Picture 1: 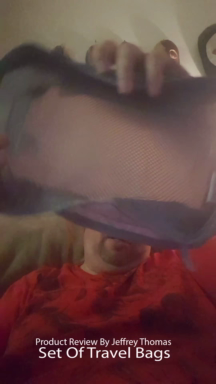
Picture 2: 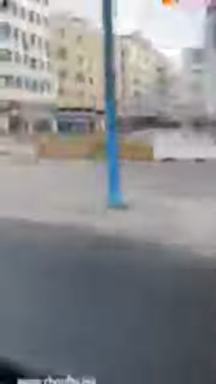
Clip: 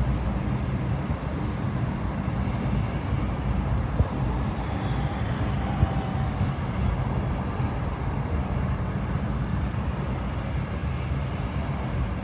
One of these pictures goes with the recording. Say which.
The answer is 2